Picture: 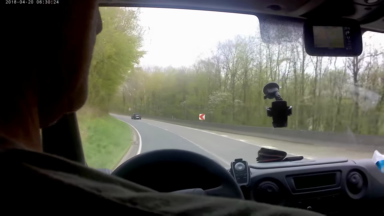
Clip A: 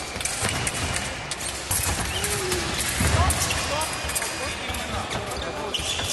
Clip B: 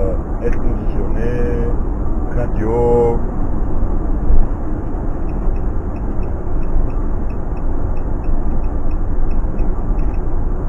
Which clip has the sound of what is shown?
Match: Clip B